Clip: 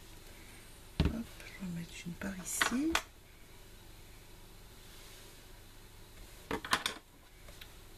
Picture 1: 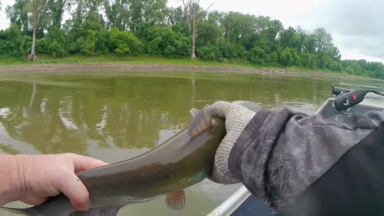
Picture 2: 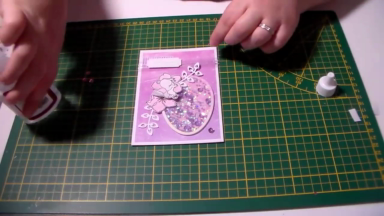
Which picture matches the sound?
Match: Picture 2